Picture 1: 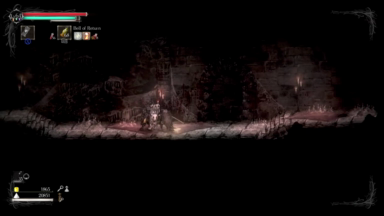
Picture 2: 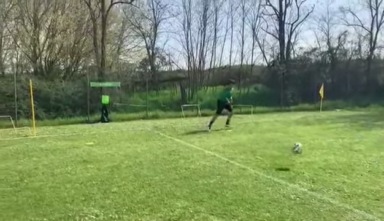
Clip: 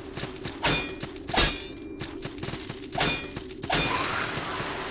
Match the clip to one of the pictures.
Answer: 1